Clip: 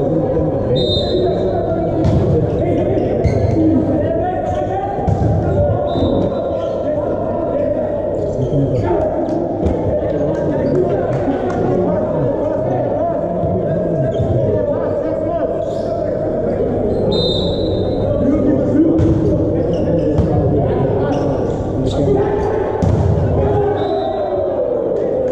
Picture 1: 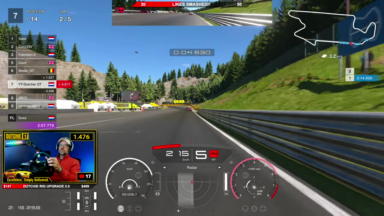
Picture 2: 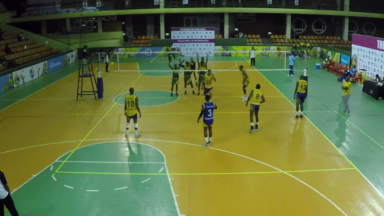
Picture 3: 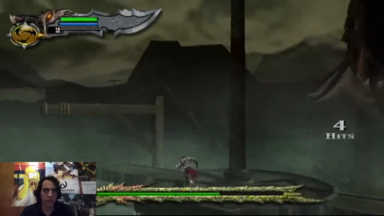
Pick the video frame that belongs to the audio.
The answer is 2